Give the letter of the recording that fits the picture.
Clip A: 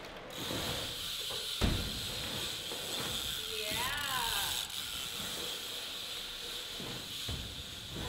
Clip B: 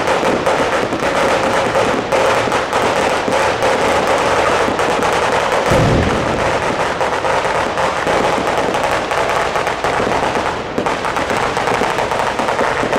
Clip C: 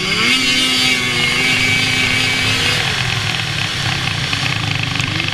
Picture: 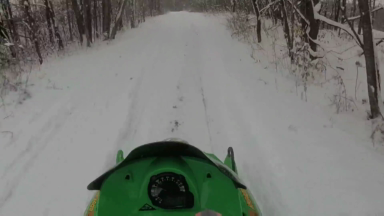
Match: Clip C